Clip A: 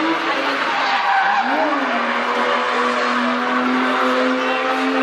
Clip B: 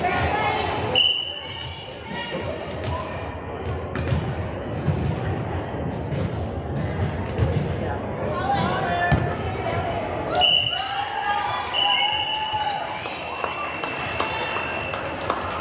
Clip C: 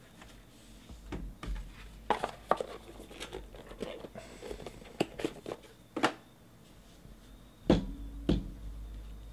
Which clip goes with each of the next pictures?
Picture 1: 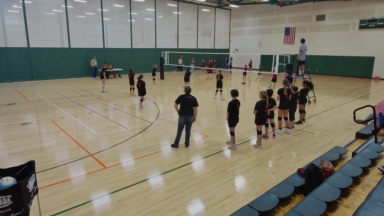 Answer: B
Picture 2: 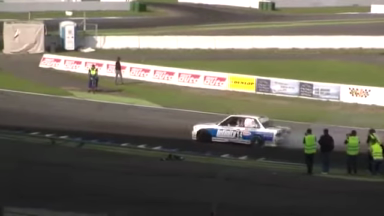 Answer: A